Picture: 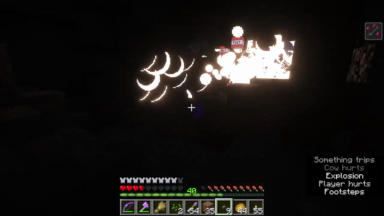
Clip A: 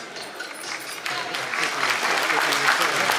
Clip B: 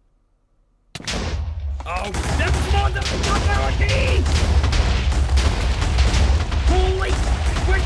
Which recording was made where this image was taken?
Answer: B